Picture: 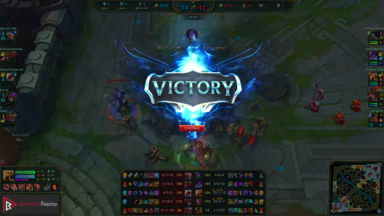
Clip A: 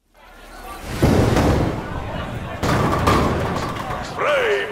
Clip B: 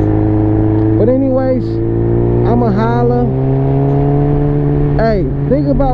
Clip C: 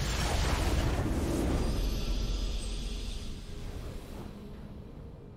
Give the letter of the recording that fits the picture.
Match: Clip C